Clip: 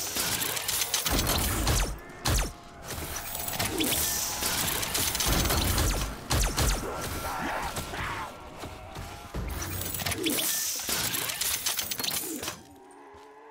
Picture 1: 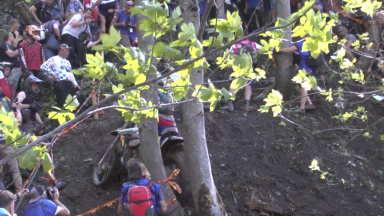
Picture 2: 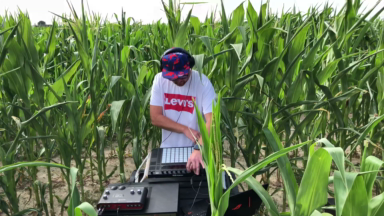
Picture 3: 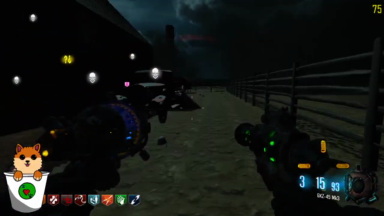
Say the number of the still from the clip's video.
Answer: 3